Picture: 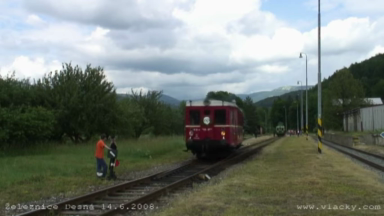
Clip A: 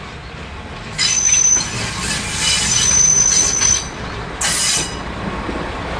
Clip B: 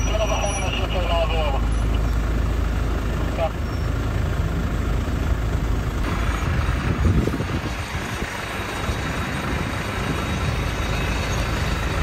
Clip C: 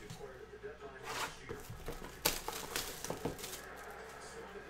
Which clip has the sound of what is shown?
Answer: A